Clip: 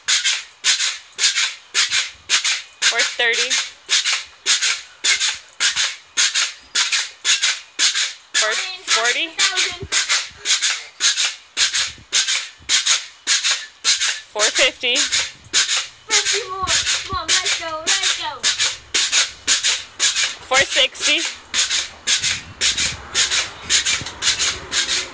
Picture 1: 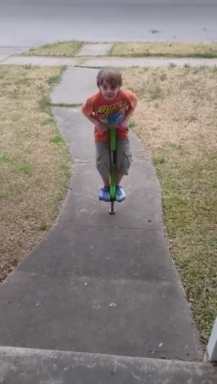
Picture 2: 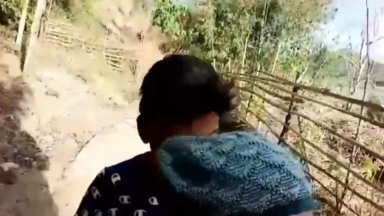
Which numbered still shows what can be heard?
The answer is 1